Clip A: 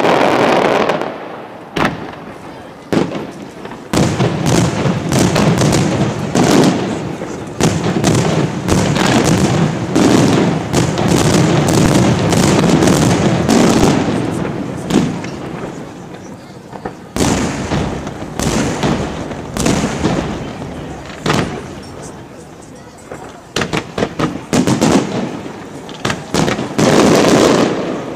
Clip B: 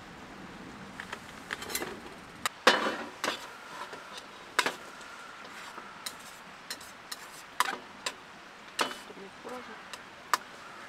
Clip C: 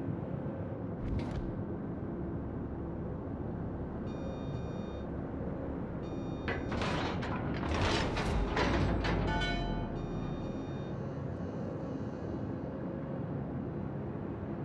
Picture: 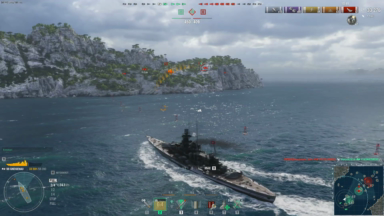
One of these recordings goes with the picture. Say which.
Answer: C